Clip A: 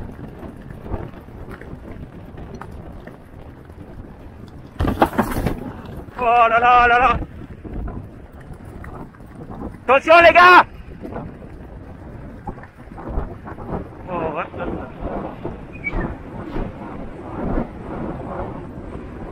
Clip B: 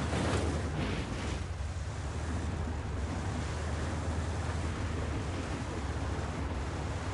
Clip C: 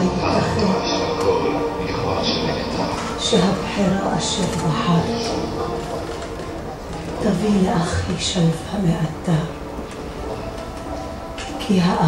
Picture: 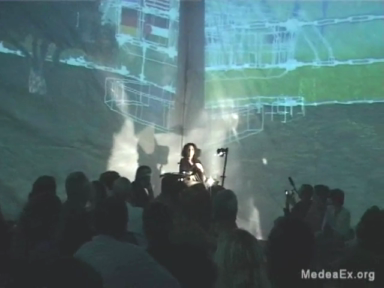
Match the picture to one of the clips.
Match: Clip C